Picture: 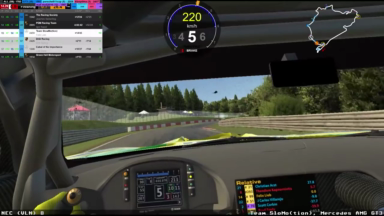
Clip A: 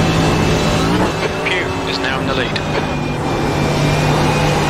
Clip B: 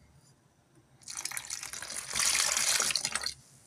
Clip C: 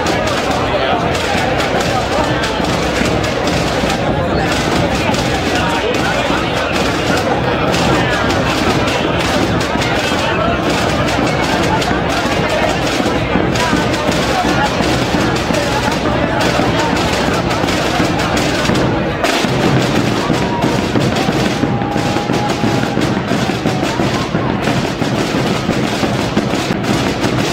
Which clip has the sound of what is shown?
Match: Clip A